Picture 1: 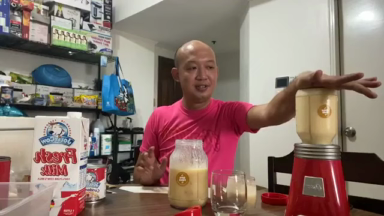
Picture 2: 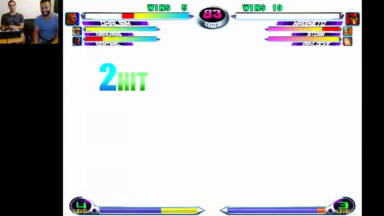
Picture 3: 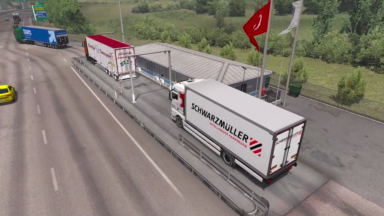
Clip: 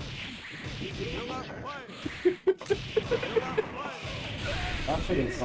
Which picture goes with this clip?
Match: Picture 2